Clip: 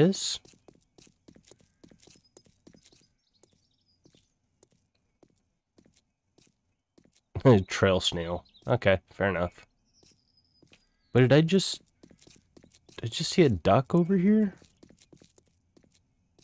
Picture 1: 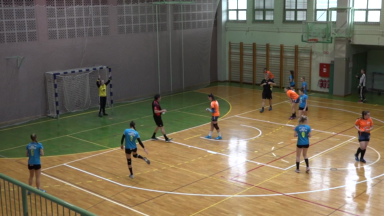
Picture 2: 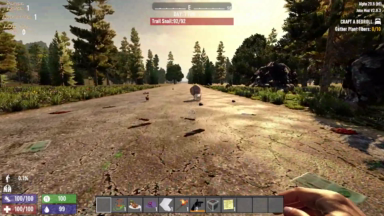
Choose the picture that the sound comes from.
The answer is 2